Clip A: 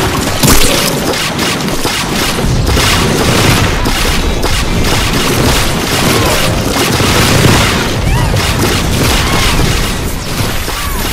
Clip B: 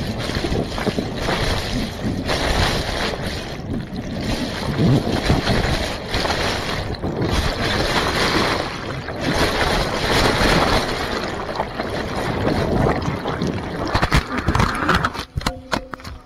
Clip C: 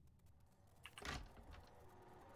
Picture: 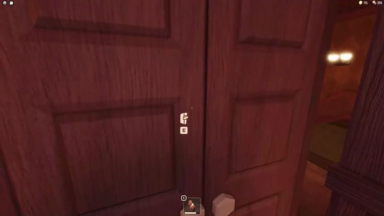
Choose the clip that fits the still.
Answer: C